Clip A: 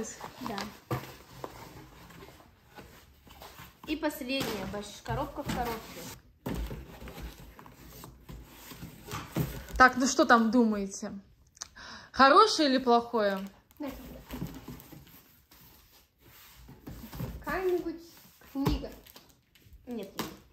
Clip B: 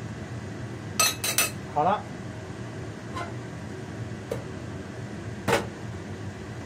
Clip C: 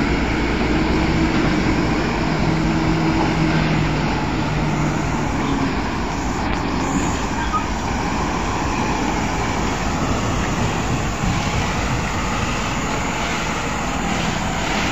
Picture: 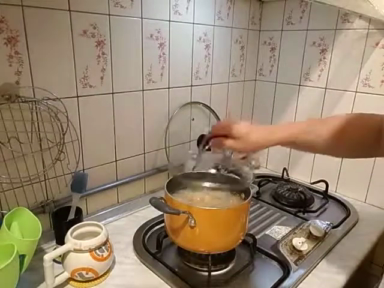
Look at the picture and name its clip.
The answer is B